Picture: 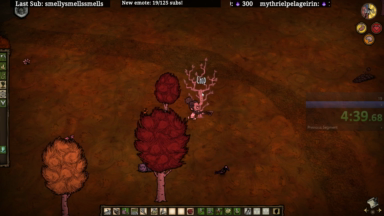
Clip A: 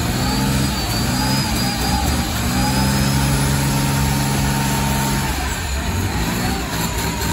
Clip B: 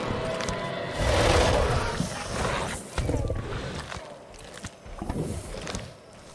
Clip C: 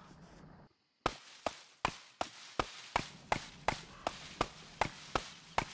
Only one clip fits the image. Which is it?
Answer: C